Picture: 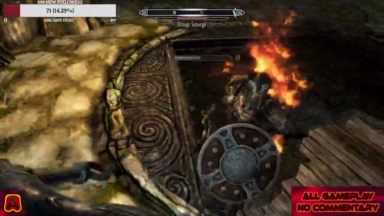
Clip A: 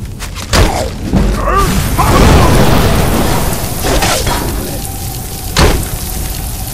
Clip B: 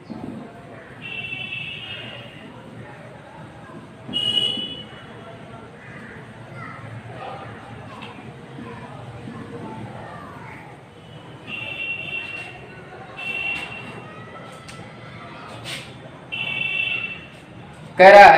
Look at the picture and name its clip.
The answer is A